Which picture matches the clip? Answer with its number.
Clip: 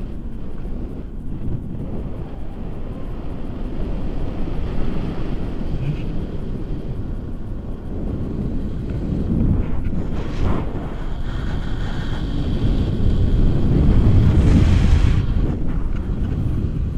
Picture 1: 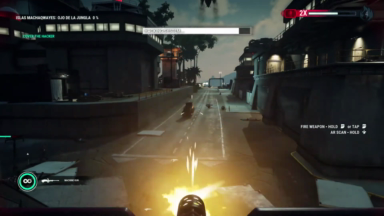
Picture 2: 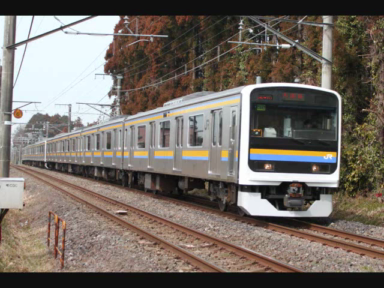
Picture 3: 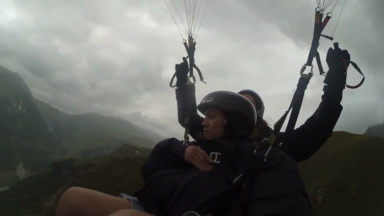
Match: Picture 3